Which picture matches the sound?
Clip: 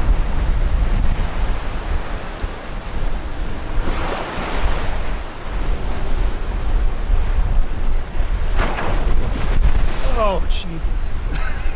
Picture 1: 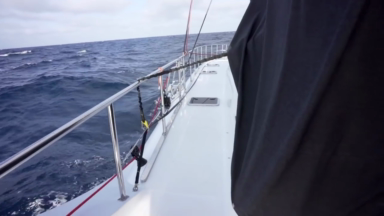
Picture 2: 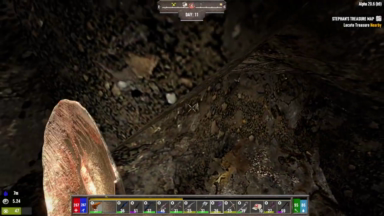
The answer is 1